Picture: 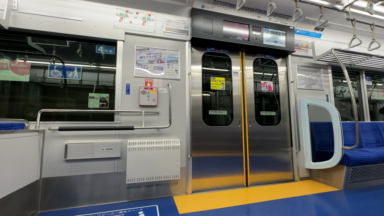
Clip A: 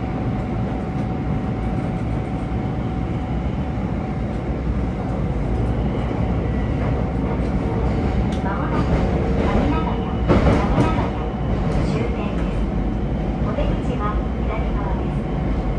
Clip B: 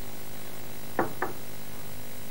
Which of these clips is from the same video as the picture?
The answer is A